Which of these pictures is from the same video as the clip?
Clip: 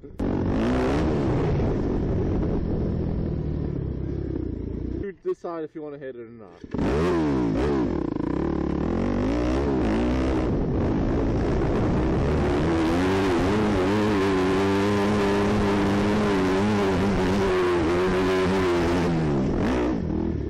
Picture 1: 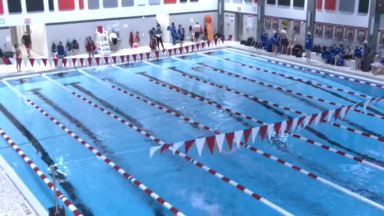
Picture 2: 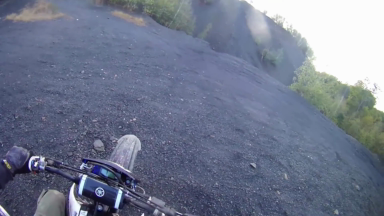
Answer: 2